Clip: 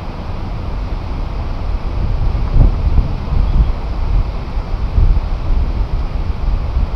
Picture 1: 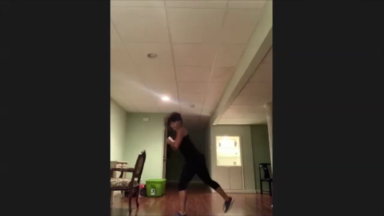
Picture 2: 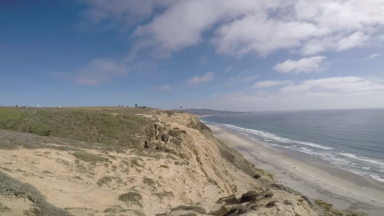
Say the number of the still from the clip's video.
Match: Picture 2